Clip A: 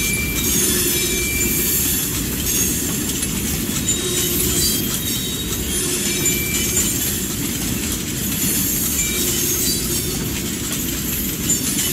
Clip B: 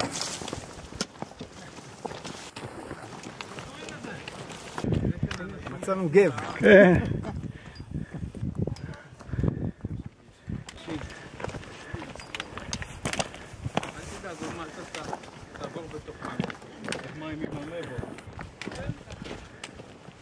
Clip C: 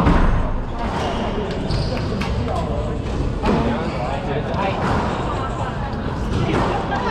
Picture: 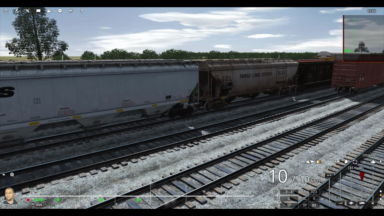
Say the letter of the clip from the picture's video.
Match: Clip A